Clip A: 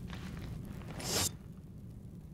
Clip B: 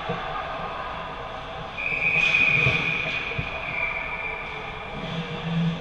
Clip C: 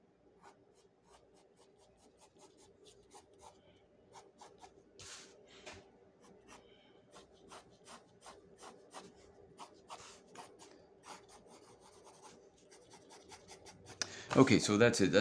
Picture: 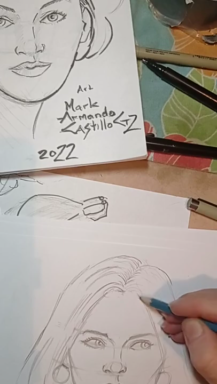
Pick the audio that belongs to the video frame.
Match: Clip C